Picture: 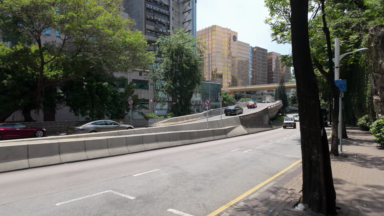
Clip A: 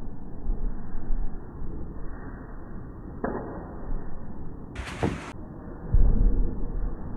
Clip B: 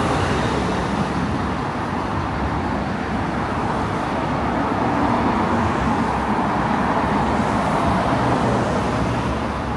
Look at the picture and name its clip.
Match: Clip B